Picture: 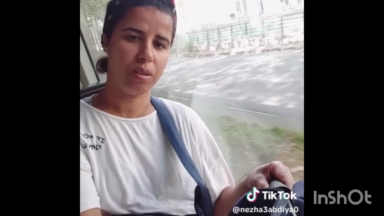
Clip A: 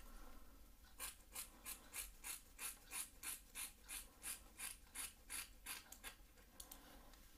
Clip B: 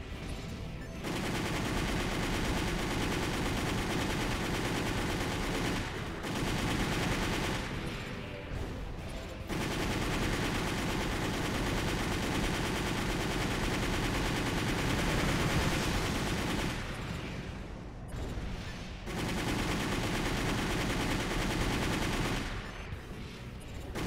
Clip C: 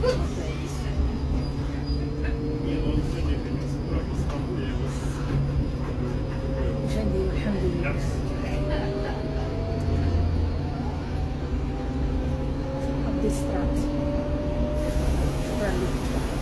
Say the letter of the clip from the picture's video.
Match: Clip C